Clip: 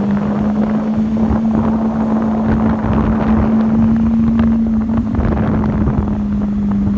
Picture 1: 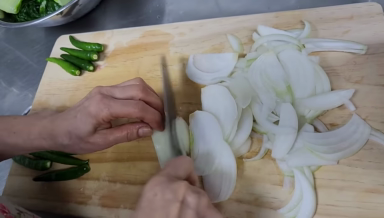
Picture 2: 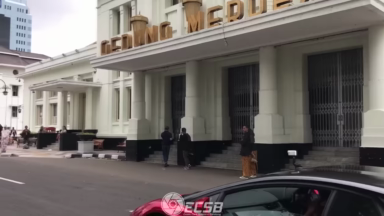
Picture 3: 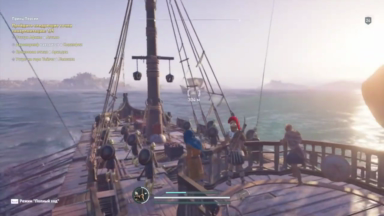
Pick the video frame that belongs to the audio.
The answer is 2